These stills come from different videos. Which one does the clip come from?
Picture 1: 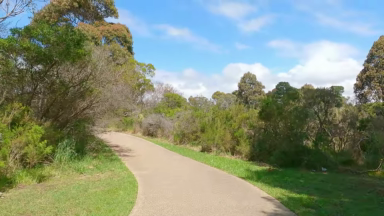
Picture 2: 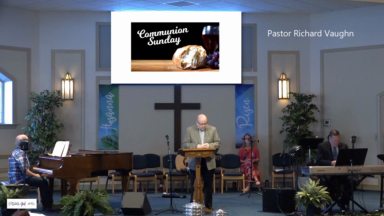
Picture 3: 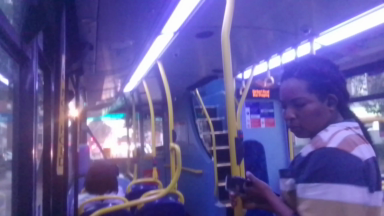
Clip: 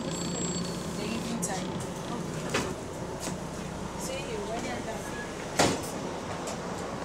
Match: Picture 3